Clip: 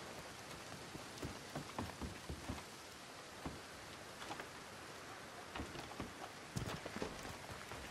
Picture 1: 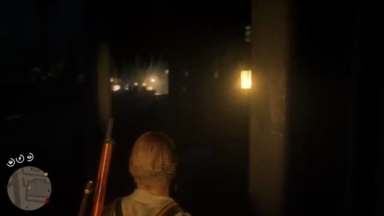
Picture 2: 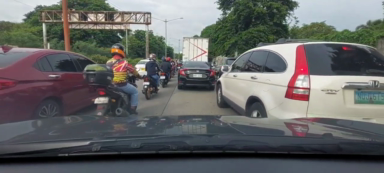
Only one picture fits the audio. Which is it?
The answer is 1